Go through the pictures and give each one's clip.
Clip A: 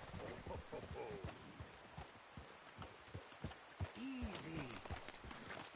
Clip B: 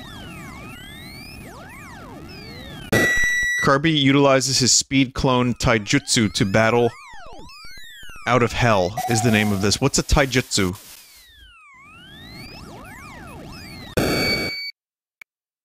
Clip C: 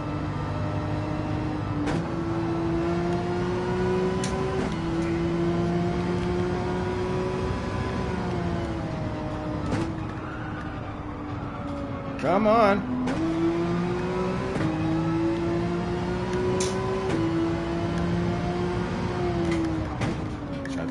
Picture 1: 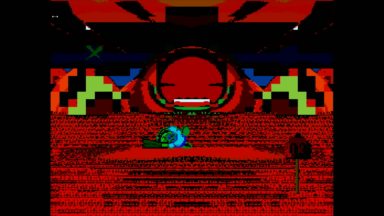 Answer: B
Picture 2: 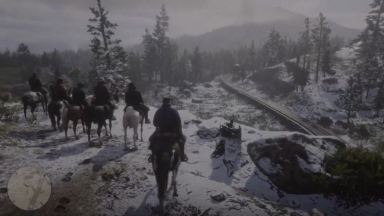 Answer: A